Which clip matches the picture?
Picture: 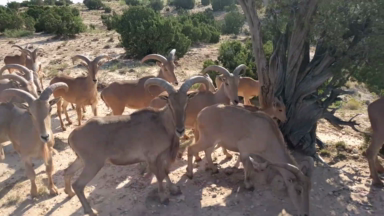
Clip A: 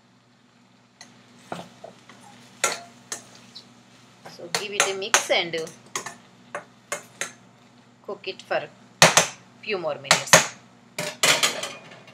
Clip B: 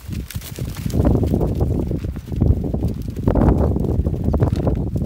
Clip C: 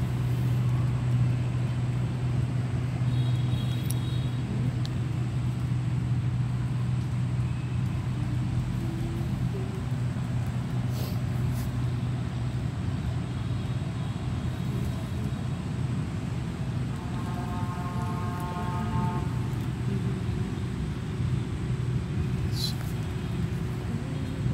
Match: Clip B